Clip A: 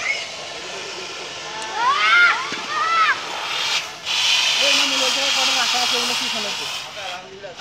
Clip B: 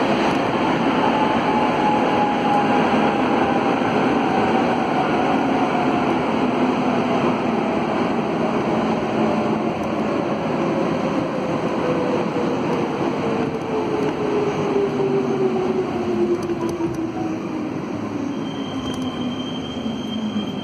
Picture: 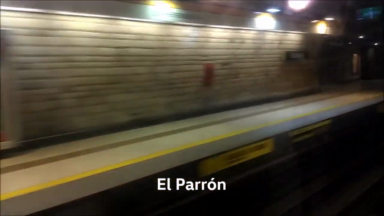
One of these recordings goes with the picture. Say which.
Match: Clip B